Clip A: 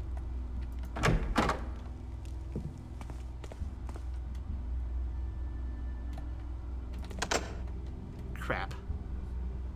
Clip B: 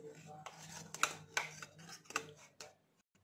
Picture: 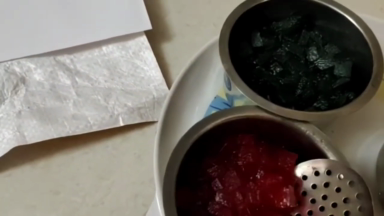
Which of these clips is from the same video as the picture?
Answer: B